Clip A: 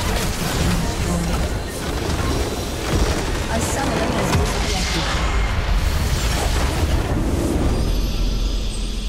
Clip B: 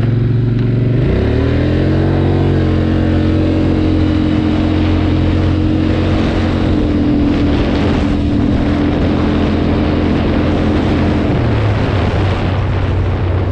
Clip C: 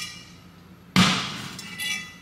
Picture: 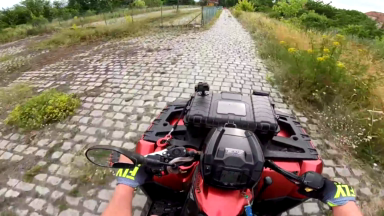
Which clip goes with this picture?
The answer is B